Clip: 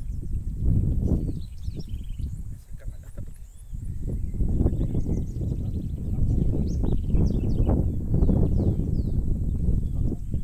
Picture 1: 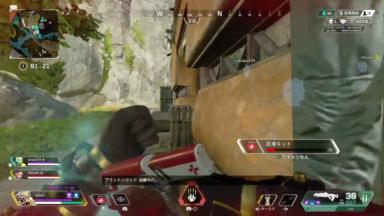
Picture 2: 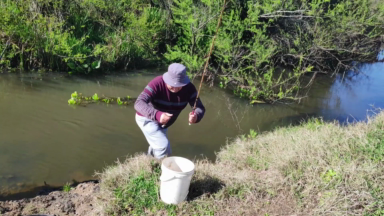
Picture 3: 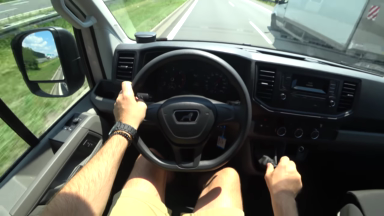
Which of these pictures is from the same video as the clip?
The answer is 2